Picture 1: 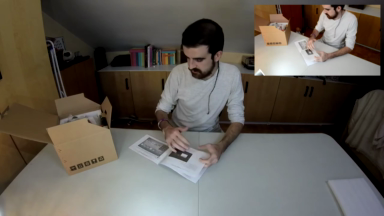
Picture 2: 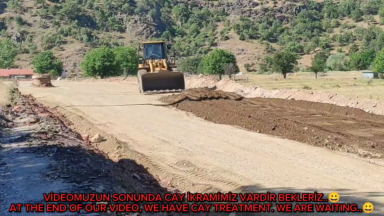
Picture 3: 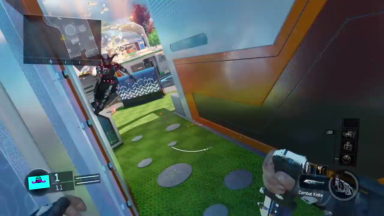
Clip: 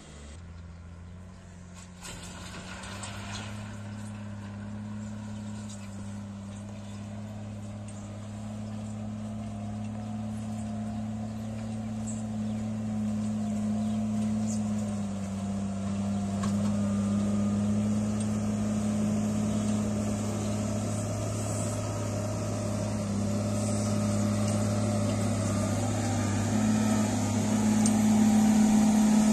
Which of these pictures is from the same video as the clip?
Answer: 2